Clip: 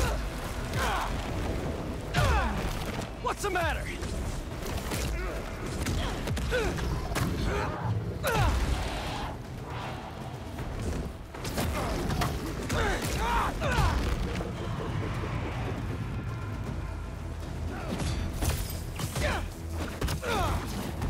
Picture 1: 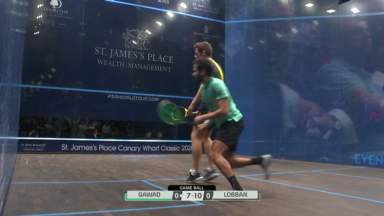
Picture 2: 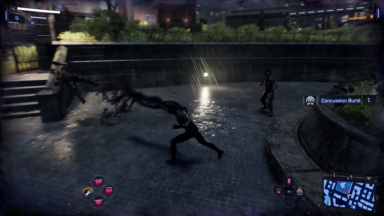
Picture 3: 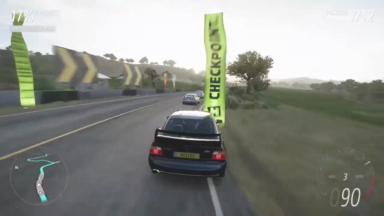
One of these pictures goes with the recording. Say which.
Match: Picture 2